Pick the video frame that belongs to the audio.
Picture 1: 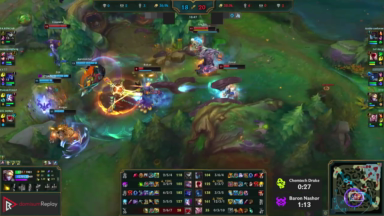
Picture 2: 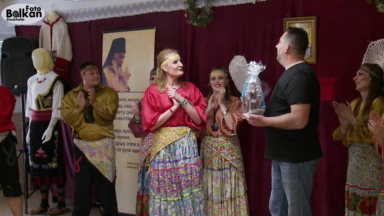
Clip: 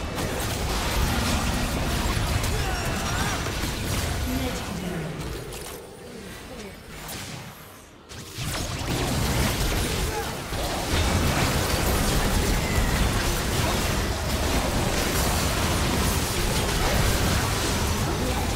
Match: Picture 1